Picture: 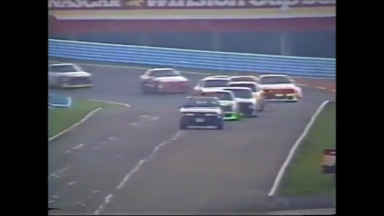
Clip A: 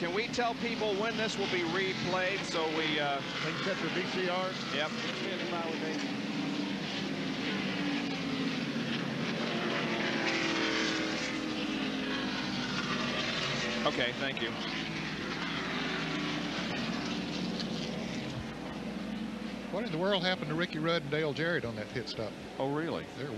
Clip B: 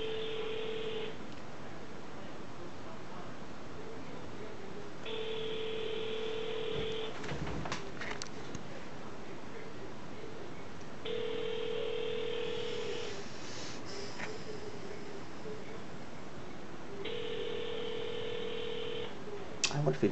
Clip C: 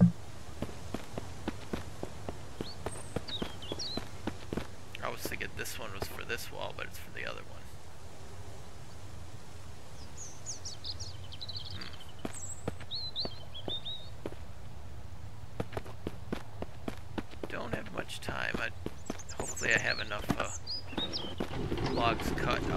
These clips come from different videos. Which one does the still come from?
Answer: A